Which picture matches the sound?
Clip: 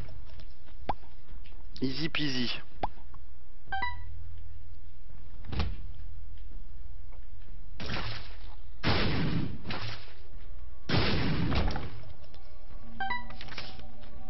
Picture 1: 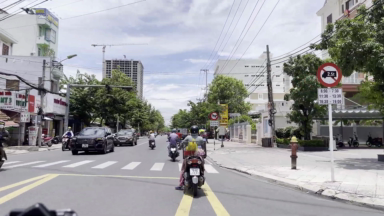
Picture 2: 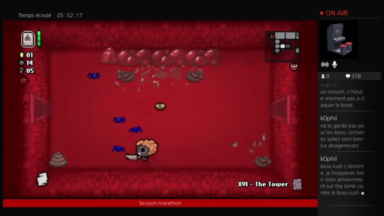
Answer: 2